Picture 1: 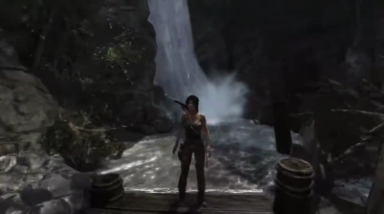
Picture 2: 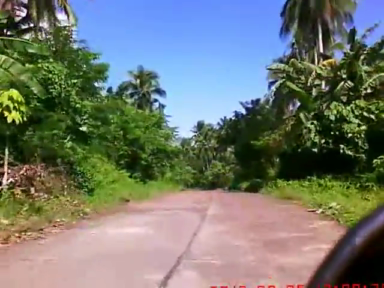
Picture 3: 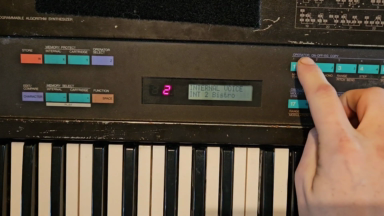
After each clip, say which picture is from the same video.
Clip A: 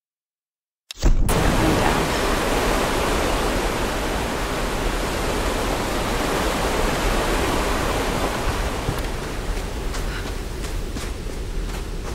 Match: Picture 1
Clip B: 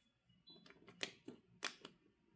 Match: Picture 3